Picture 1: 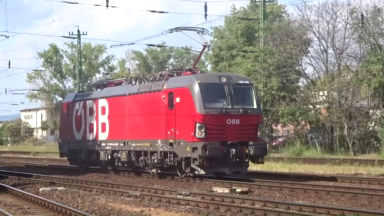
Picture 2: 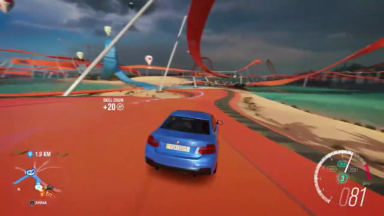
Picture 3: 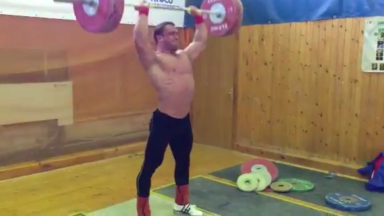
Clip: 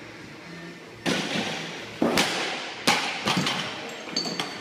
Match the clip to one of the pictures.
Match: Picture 3